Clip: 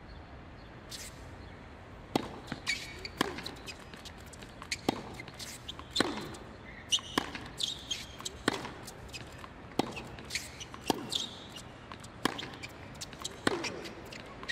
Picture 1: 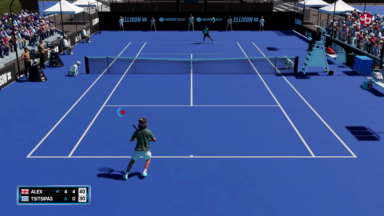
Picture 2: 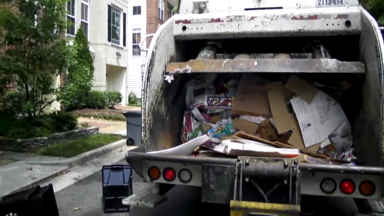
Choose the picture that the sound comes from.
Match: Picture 1